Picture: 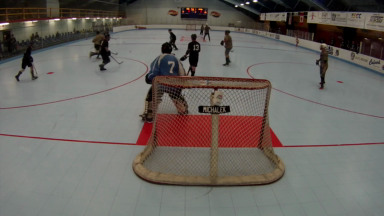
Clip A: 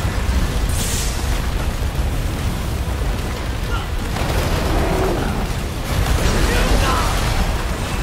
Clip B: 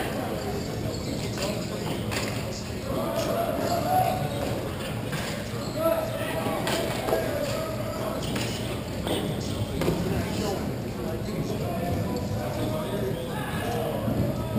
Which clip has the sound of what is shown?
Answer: B